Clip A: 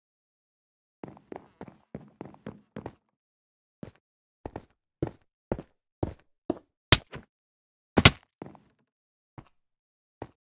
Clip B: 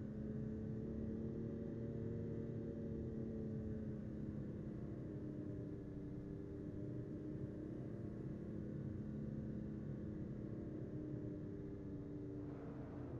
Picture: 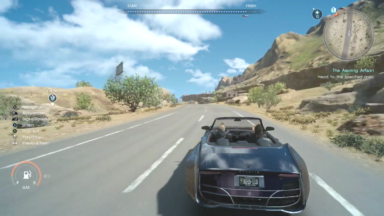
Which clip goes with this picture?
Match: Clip B